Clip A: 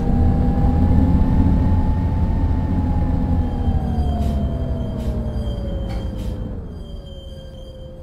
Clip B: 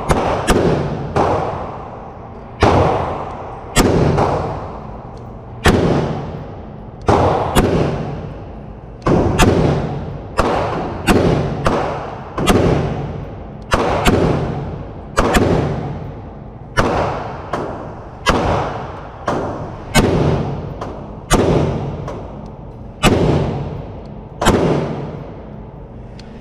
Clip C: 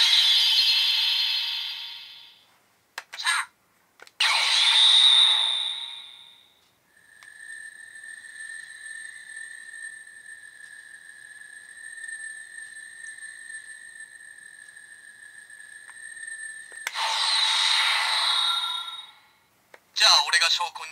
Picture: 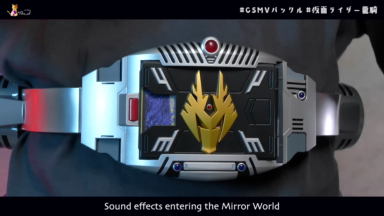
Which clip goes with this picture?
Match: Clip C